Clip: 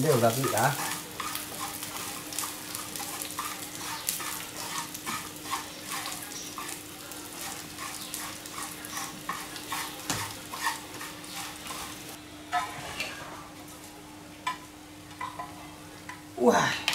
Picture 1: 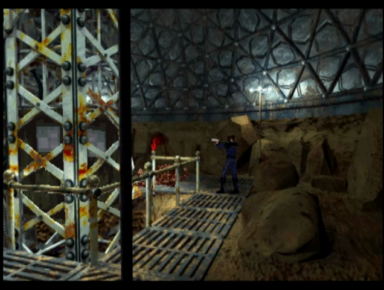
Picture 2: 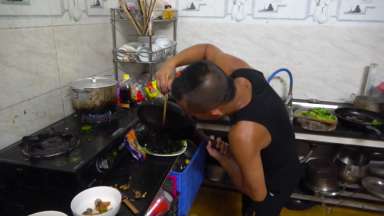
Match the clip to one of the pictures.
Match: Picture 2